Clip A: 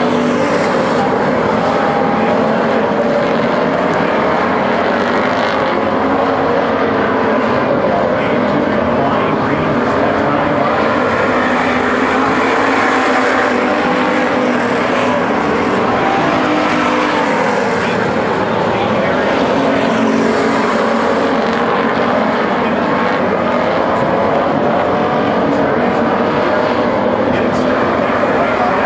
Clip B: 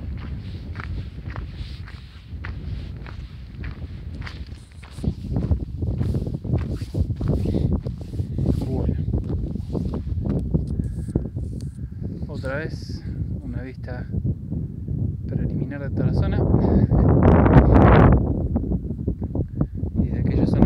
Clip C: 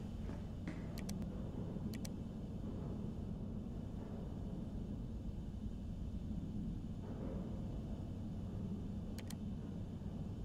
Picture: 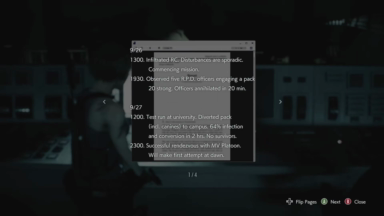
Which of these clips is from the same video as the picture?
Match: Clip C